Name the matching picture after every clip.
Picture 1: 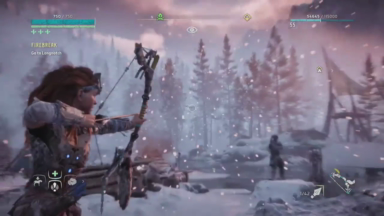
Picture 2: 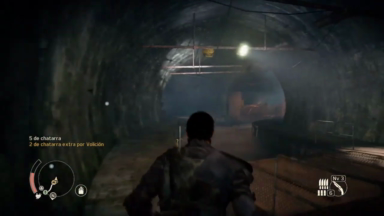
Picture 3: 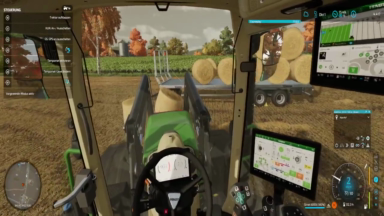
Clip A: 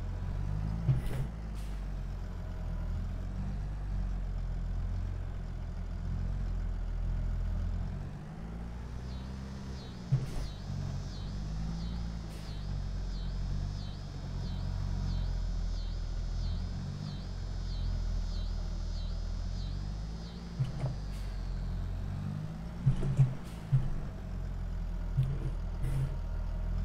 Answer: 3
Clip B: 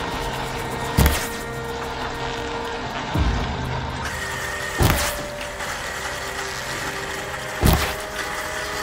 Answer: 1